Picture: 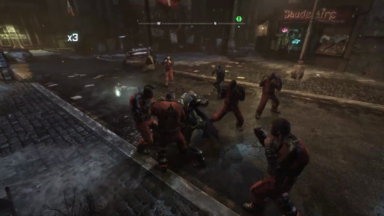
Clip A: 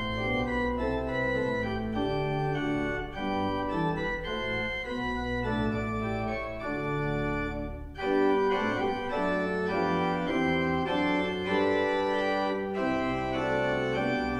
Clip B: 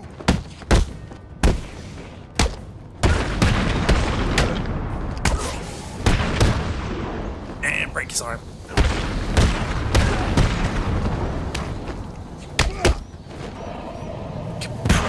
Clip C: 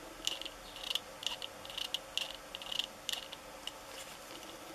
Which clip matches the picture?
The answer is B